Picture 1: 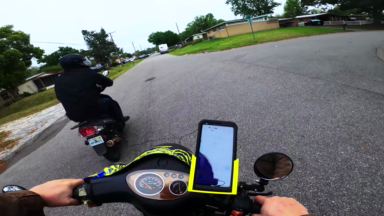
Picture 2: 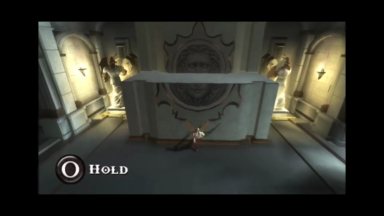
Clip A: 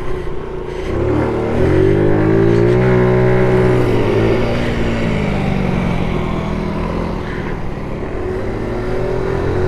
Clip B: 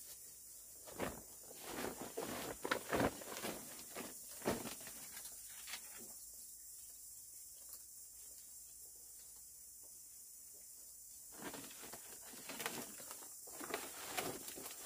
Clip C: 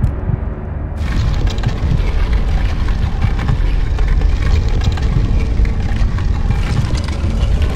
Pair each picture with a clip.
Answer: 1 A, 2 C